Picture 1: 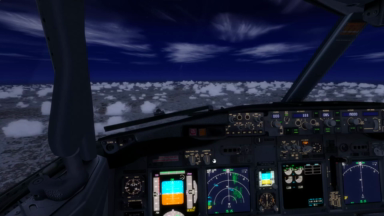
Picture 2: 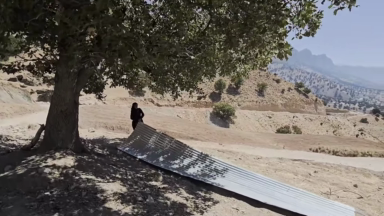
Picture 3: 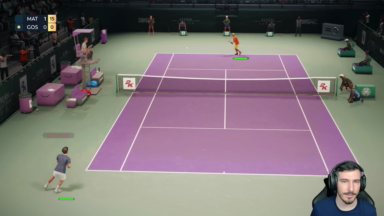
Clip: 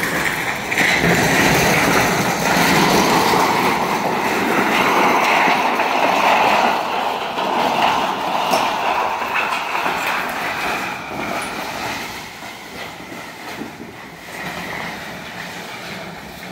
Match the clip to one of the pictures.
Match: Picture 2